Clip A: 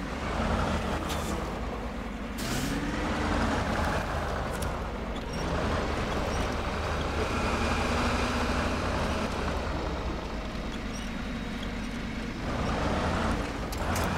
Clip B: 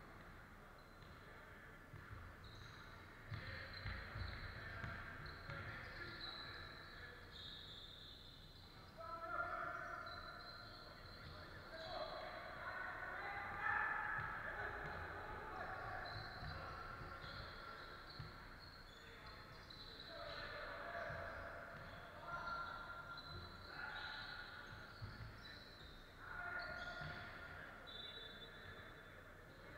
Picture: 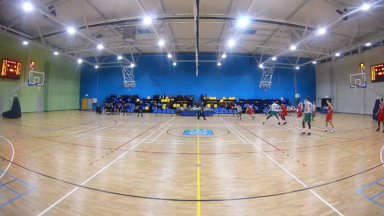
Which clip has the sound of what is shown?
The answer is B